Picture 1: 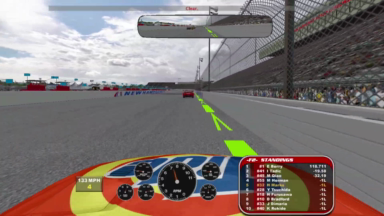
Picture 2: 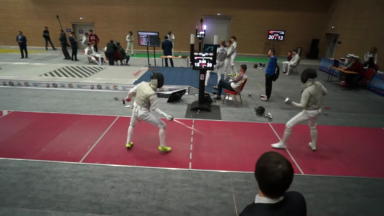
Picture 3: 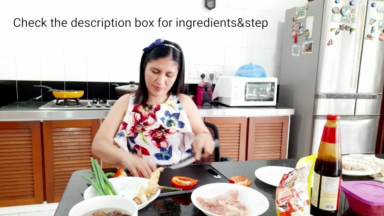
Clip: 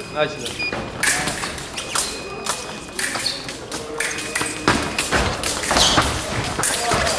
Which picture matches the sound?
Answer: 2